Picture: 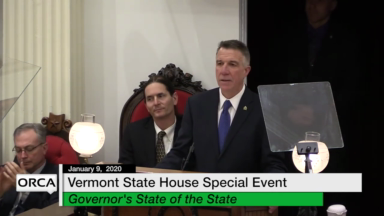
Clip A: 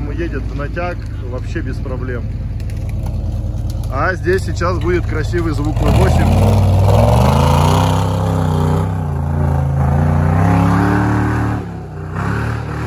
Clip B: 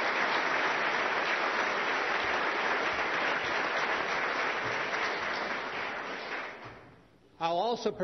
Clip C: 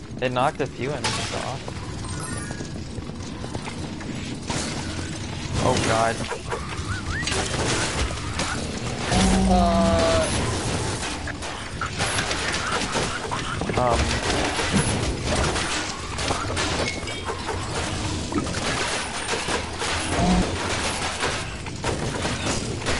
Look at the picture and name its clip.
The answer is B